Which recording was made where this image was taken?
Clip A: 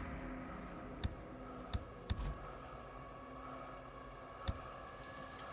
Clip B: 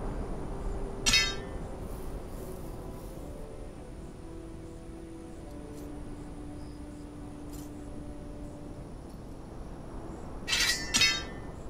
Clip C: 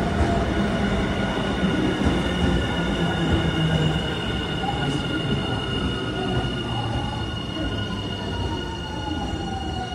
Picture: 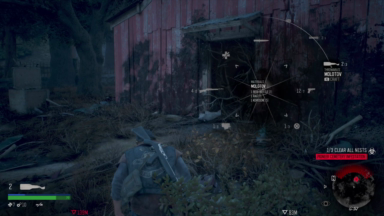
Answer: A